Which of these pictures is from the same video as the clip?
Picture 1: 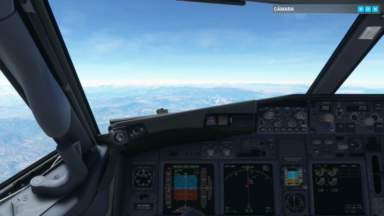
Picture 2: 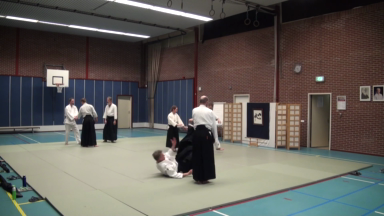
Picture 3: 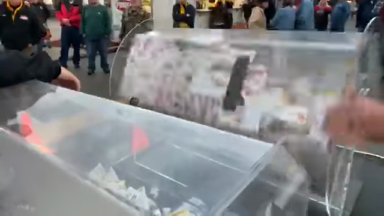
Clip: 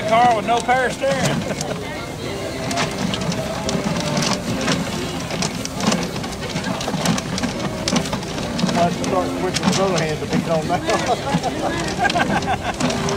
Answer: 3